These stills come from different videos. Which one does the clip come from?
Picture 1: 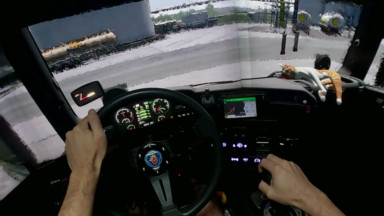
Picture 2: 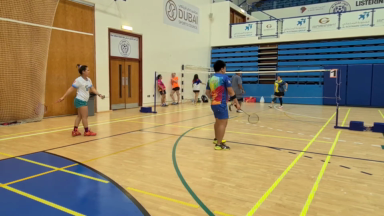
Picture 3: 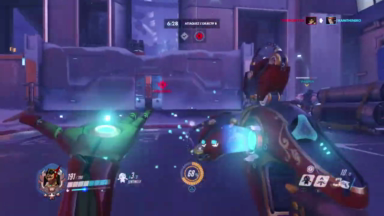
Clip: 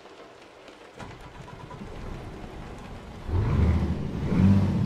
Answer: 1